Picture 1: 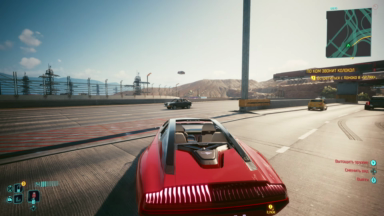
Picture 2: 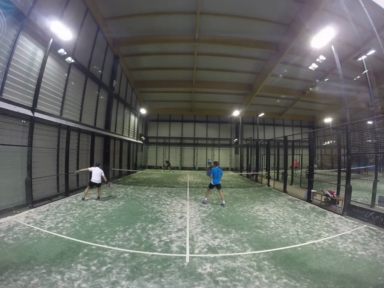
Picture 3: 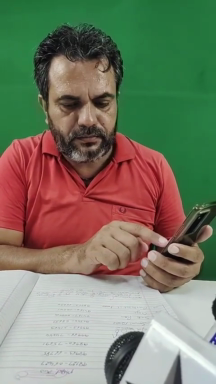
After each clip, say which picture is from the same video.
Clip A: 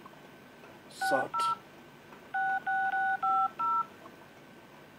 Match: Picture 3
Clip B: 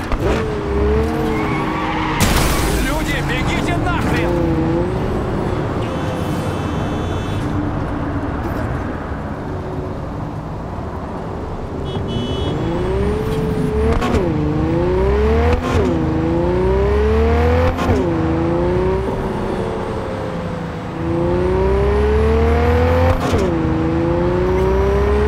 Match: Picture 1